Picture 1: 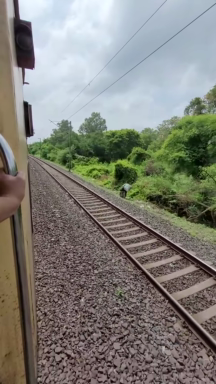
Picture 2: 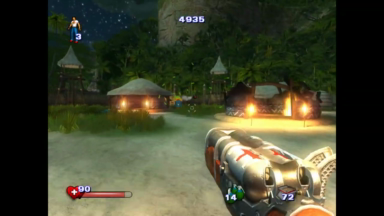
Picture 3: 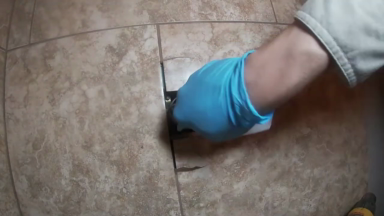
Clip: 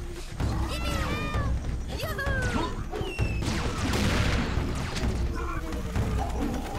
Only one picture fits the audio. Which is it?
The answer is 2